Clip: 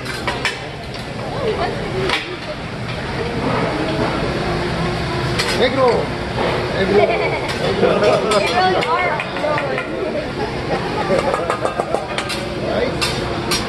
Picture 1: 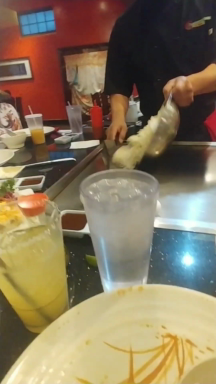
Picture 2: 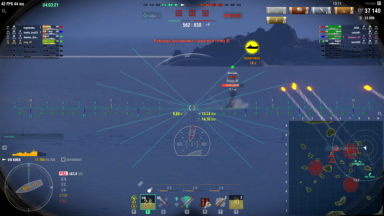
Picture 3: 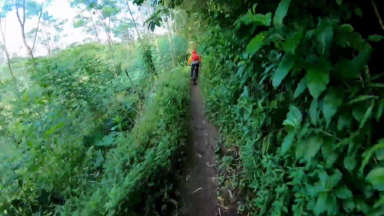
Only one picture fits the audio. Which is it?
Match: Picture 1